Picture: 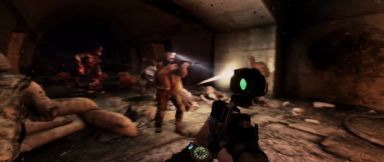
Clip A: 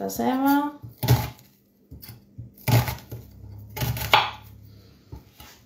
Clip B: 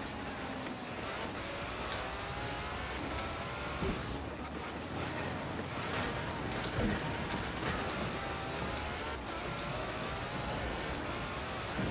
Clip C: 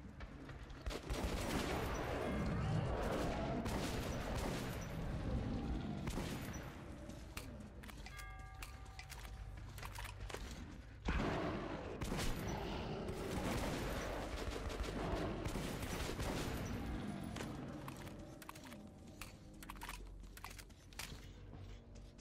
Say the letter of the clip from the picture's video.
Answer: C